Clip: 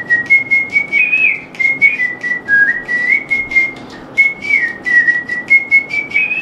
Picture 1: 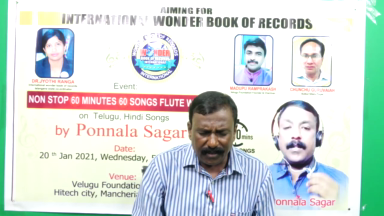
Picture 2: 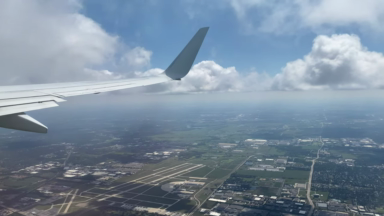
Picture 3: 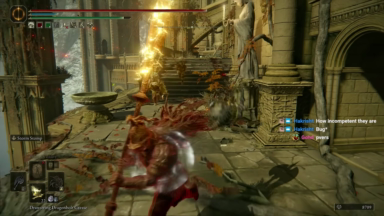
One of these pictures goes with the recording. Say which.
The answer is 1